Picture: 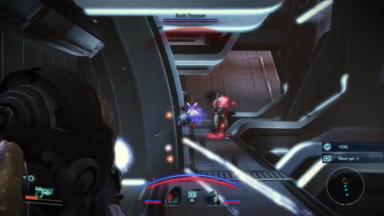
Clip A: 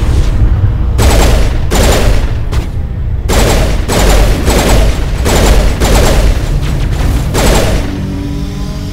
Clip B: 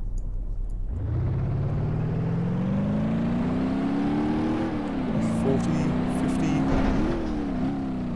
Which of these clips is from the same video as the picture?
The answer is A